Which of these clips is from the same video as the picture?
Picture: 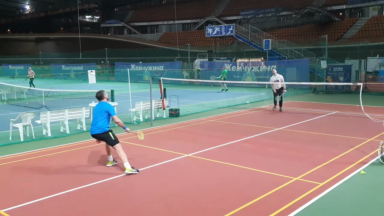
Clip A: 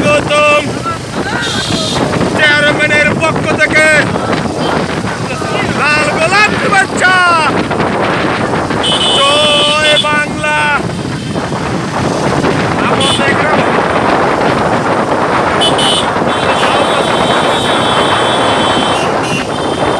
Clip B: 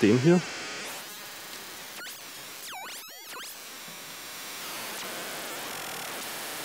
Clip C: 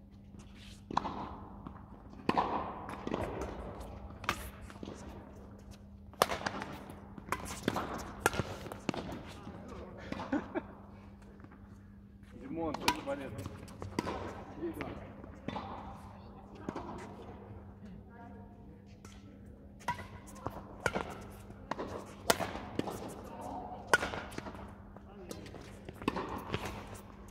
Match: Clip C